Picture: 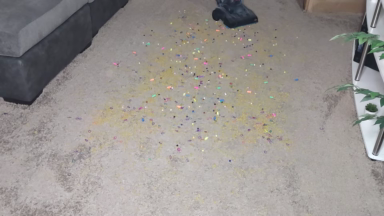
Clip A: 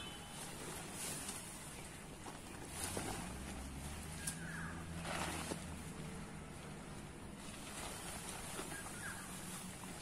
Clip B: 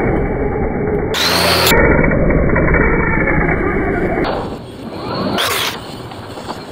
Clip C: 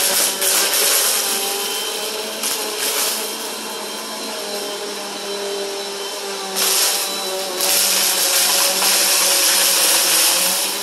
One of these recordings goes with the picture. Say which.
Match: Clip C